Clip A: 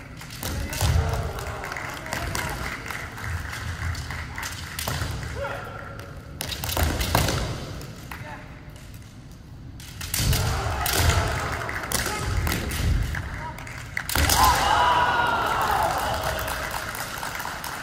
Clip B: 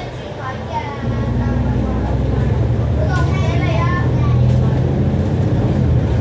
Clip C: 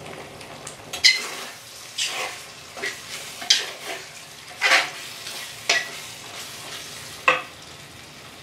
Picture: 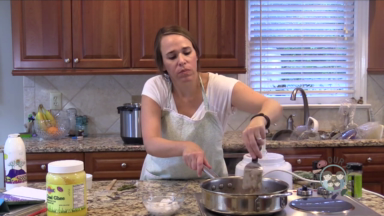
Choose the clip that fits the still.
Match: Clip C